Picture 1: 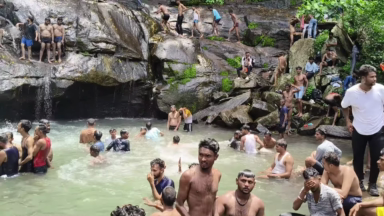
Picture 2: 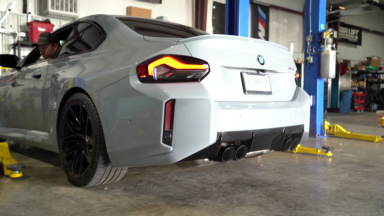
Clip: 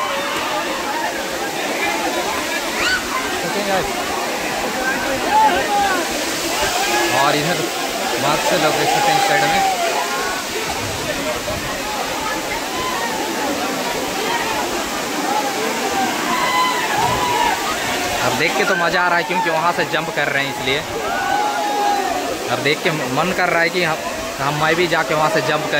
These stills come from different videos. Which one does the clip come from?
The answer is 1